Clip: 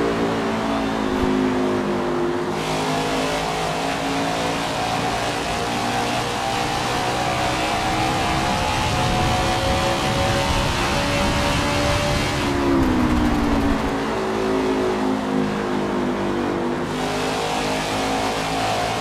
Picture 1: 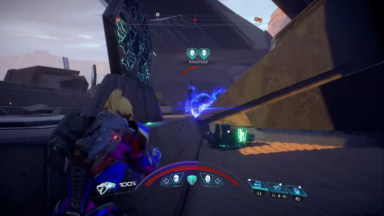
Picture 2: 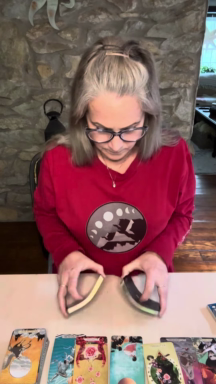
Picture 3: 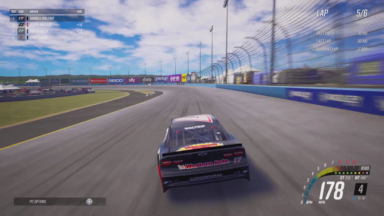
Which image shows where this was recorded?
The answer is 3